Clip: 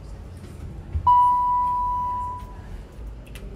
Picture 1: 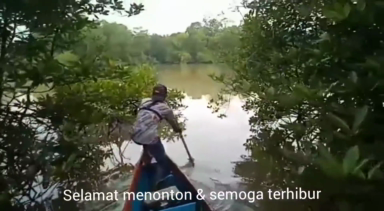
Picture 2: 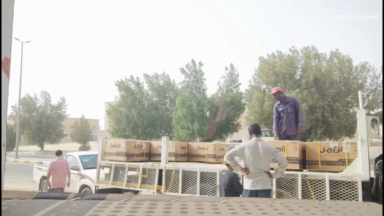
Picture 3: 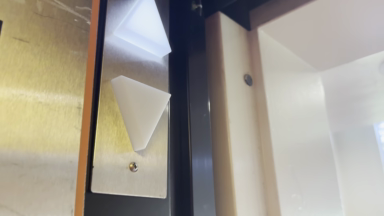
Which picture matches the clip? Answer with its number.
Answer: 3